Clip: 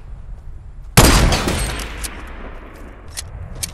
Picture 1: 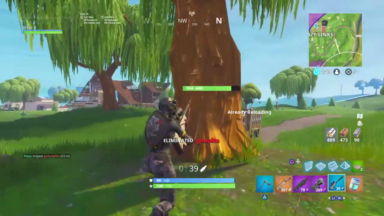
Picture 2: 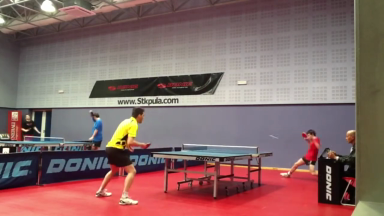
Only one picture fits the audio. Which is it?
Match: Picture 1